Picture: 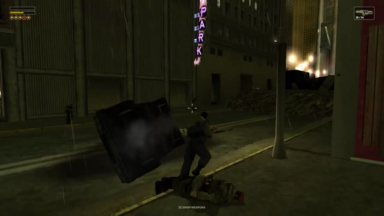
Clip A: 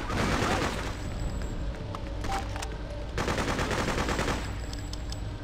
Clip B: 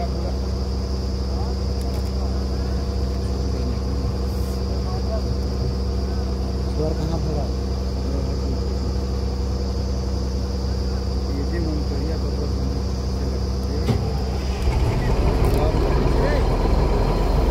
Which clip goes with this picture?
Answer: A